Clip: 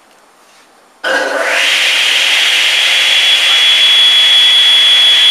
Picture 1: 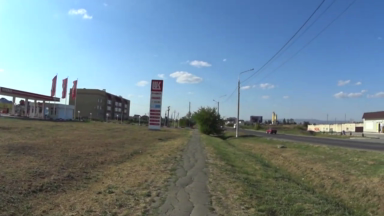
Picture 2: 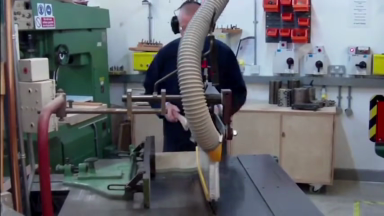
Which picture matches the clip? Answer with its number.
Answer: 2